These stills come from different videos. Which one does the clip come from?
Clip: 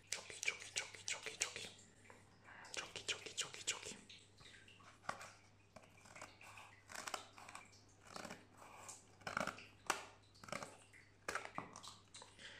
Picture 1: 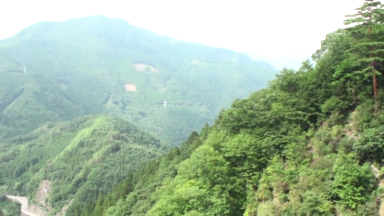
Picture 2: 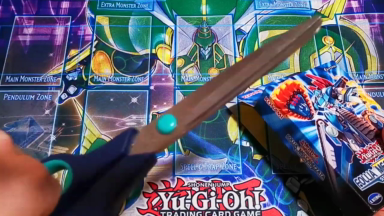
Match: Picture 2